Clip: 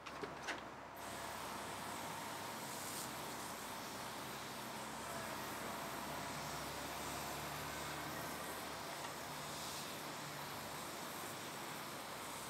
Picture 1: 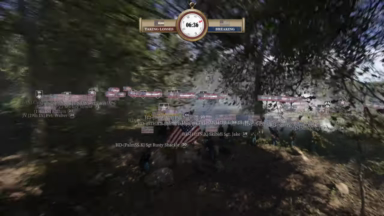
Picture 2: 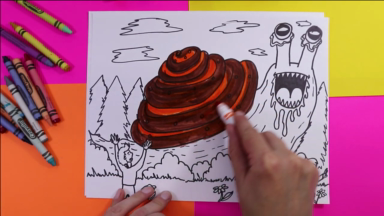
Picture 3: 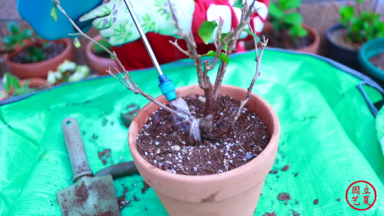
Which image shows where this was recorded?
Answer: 3